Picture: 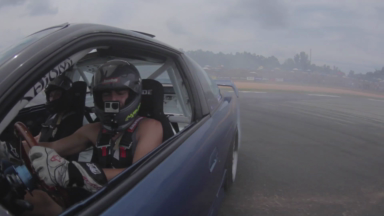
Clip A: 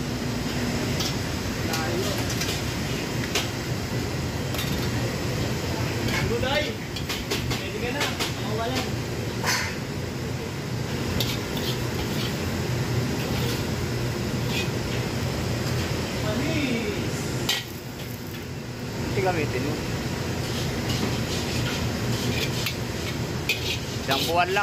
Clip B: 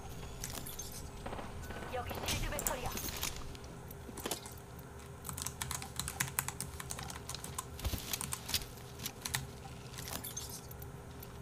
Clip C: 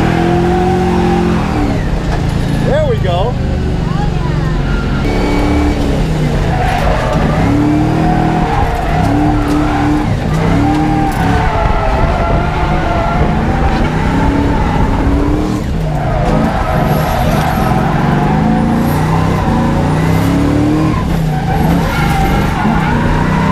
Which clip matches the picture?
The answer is C